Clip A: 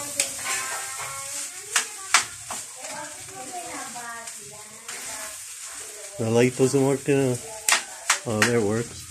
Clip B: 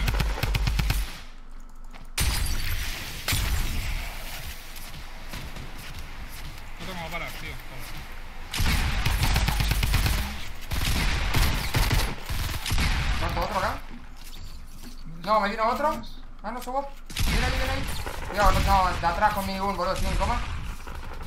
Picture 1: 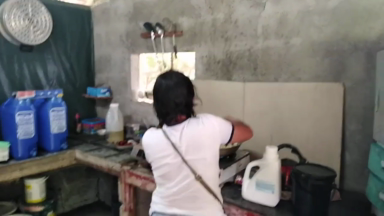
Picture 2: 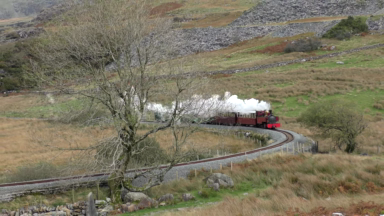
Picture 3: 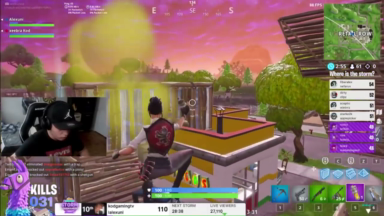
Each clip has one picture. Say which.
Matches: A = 1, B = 3